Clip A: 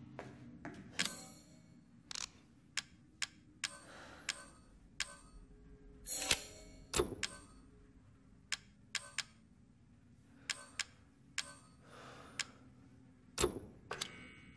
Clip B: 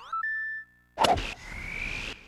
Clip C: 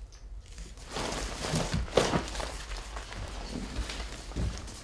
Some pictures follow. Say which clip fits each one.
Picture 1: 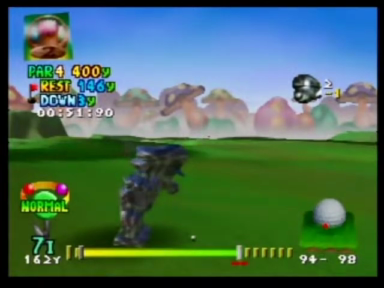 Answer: B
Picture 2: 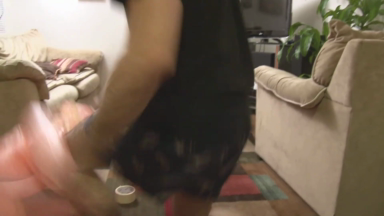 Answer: C